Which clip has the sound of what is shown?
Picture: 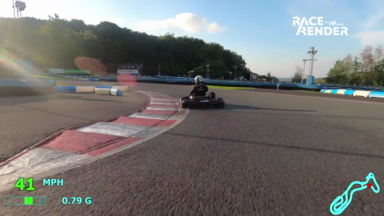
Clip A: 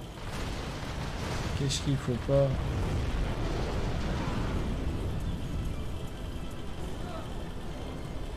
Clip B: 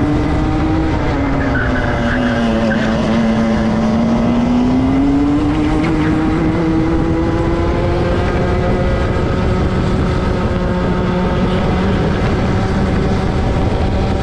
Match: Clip B